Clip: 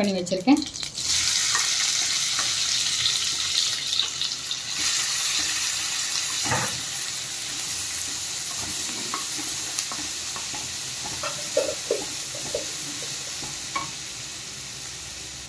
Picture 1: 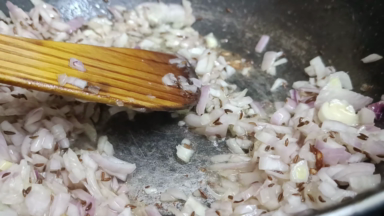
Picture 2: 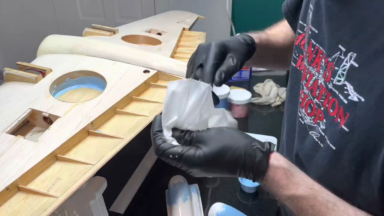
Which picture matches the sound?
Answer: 1